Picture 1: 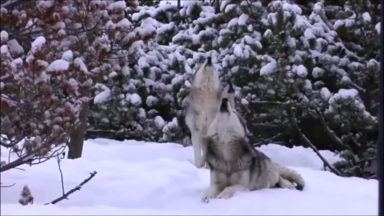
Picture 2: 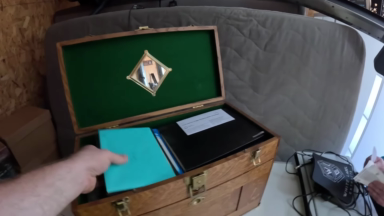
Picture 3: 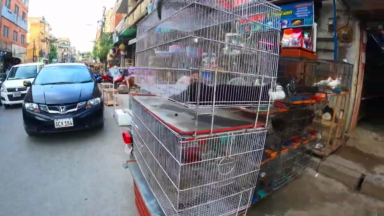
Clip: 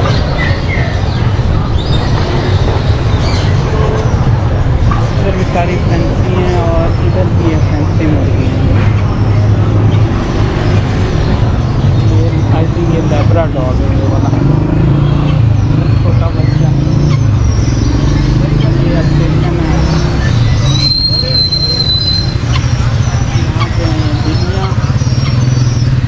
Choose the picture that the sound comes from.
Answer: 3